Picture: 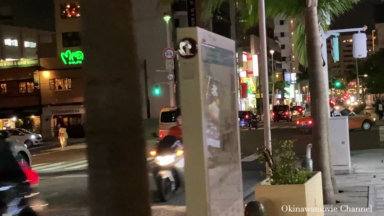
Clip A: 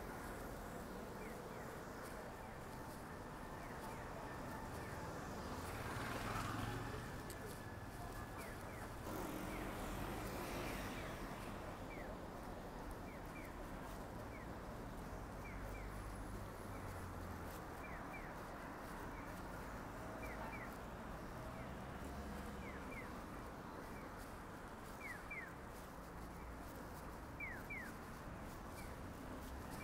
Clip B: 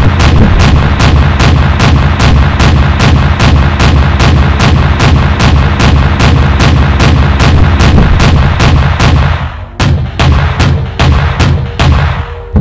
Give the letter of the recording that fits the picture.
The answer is A